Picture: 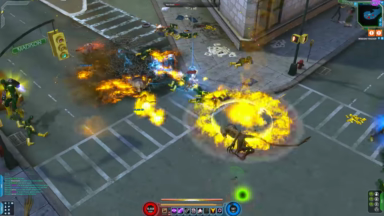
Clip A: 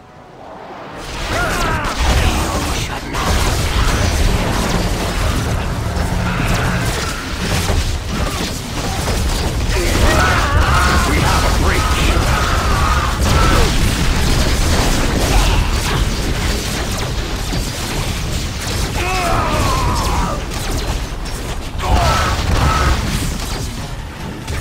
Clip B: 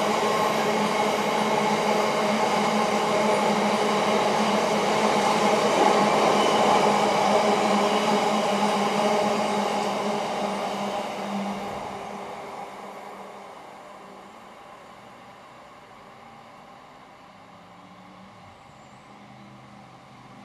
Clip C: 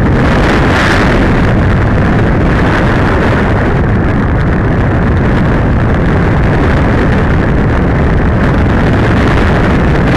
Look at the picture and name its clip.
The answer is A